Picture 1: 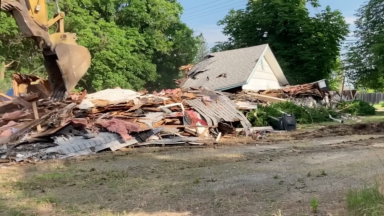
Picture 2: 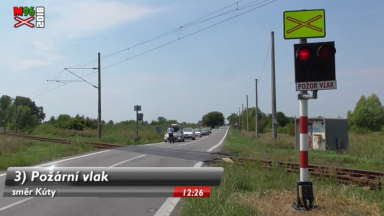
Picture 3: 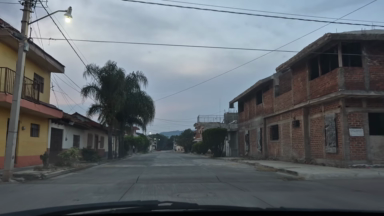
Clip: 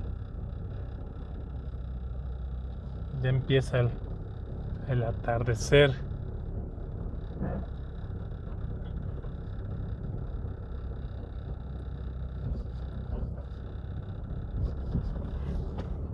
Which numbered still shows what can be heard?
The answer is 3